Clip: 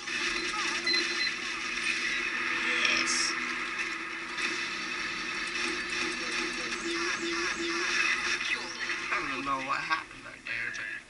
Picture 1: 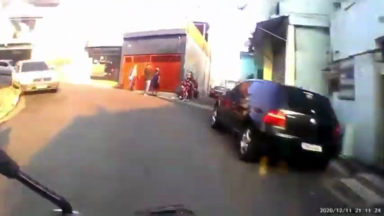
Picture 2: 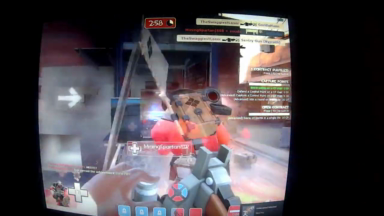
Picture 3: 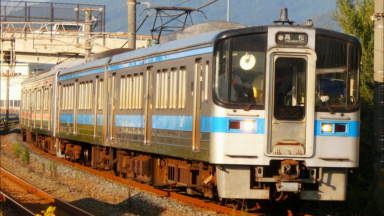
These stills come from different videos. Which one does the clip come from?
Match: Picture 2